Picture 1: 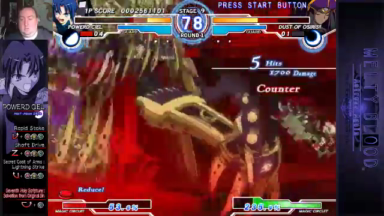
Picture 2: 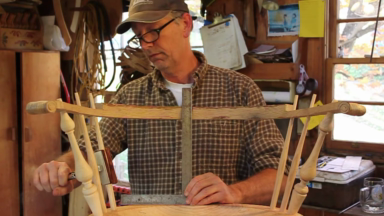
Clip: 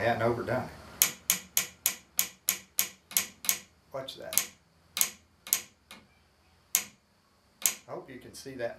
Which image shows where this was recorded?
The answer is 2